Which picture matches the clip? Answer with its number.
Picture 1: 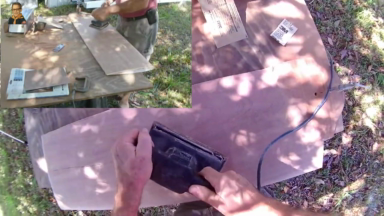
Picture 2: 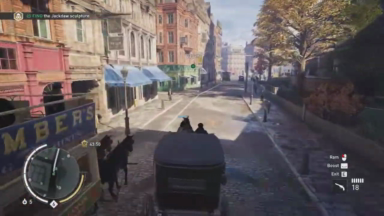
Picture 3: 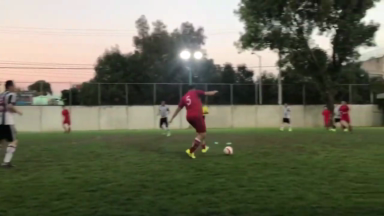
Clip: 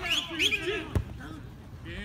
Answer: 3